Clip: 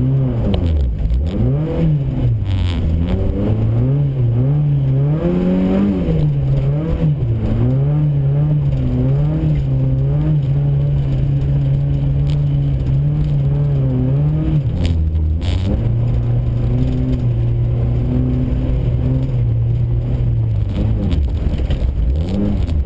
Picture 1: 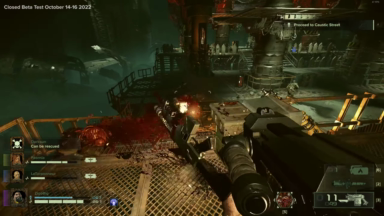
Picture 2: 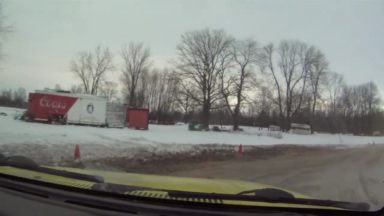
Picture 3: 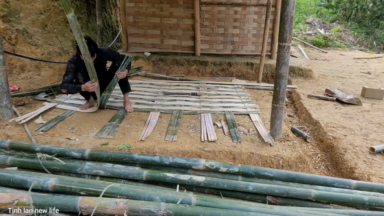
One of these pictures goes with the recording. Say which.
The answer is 2